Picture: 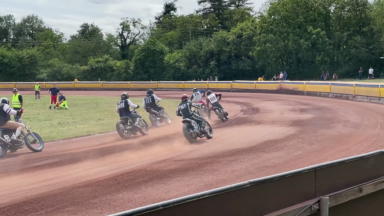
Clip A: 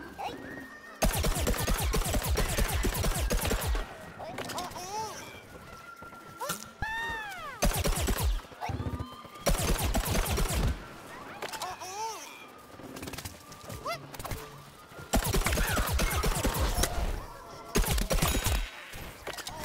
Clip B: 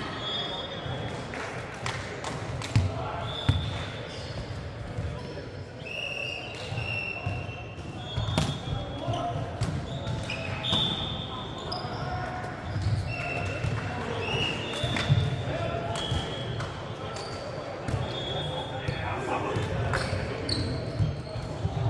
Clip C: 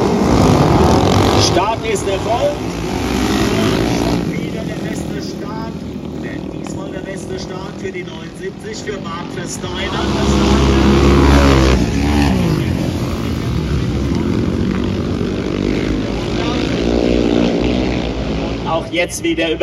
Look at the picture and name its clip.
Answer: C